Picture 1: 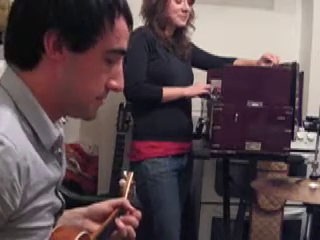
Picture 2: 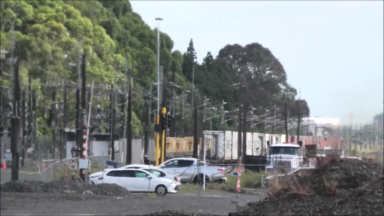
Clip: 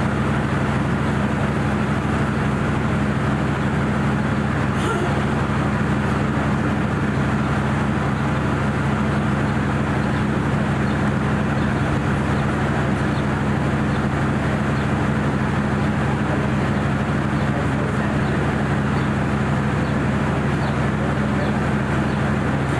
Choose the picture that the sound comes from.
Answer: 2